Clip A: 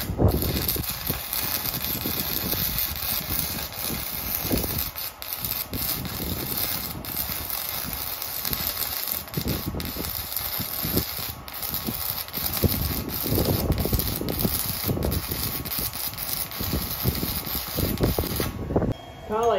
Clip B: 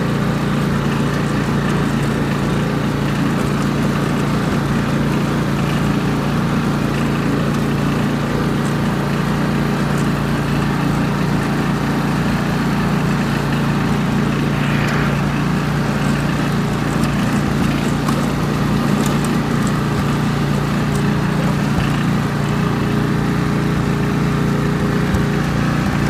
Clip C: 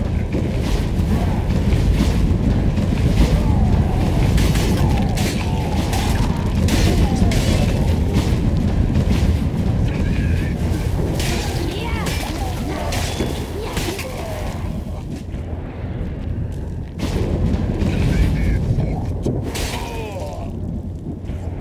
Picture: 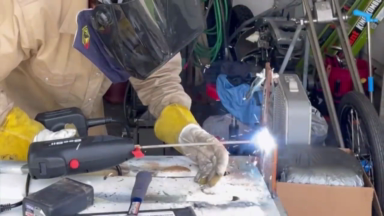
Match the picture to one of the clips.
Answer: A